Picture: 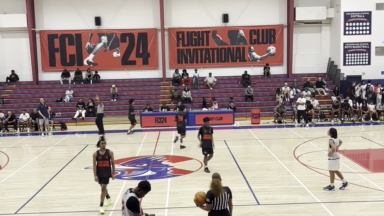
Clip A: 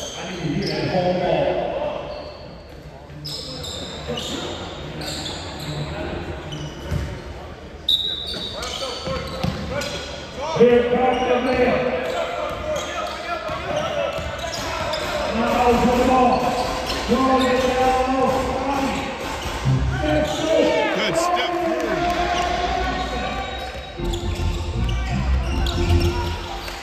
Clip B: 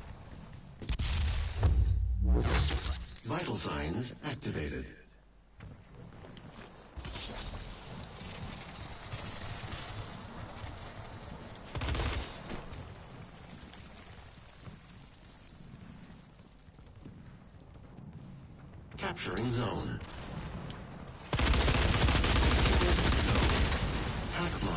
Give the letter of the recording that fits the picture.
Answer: A